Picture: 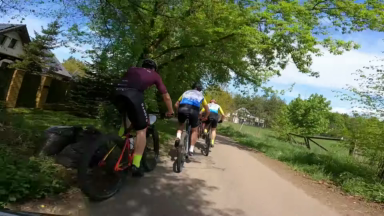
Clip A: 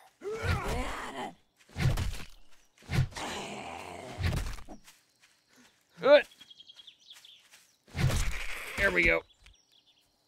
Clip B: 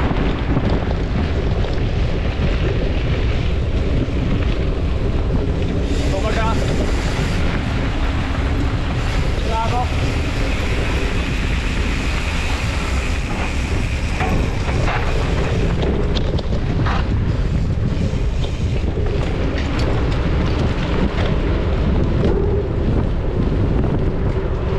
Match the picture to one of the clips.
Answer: B